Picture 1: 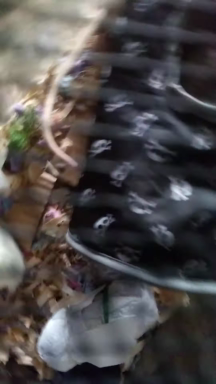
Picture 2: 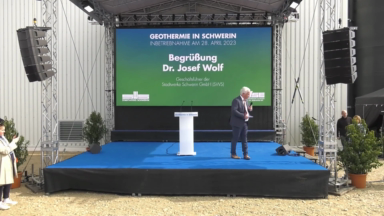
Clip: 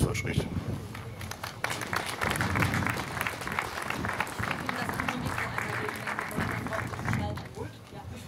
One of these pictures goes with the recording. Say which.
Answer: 2